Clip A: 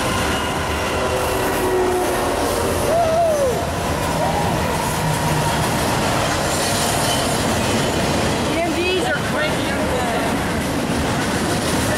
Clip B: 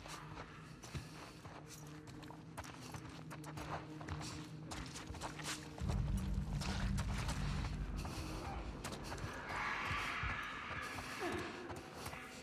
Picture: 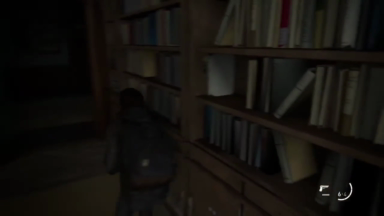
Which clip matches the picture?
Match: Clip B